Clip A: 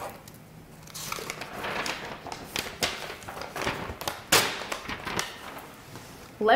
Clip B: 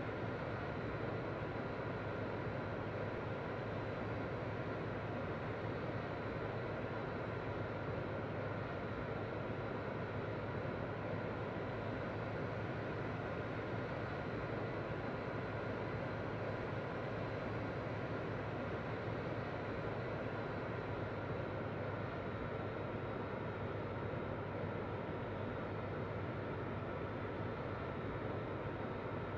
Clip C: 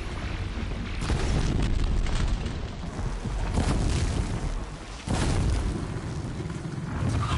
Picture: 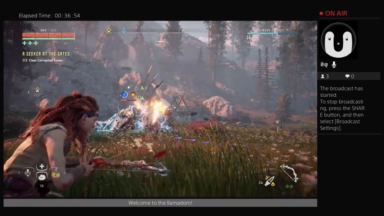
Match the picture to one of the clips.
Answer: C